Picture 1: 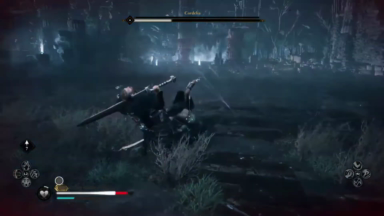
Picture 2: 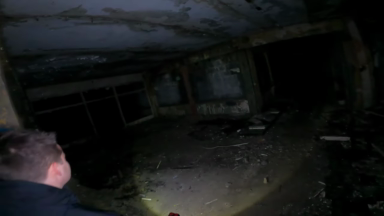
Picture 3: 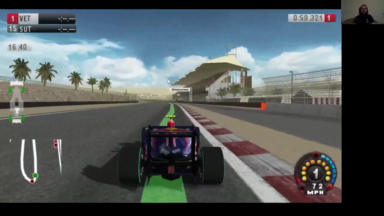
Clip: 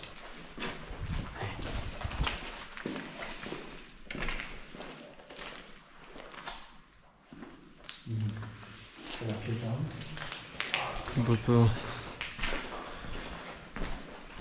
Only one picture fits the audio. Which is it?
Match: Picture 2